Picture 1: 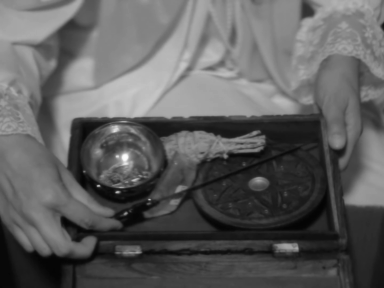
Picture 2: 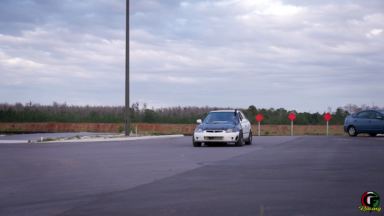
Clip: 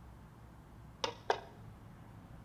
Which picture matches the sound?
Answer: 1